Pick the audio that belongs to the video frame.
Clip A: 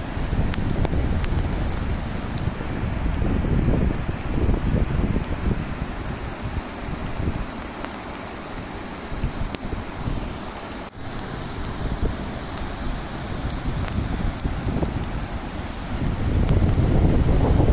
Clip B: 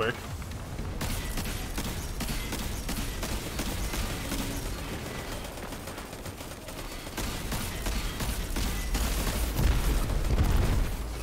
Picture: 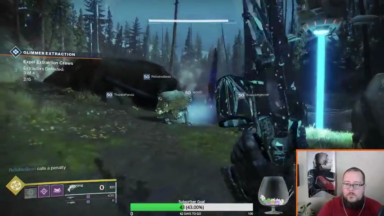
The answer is B